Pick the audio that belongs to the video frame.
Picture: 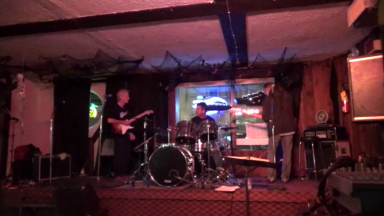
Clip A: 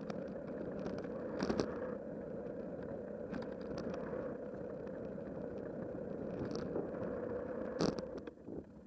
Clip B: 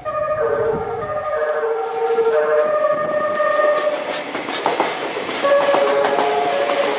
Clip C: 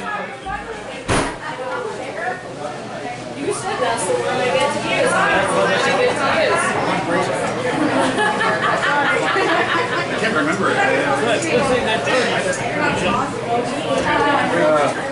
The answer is C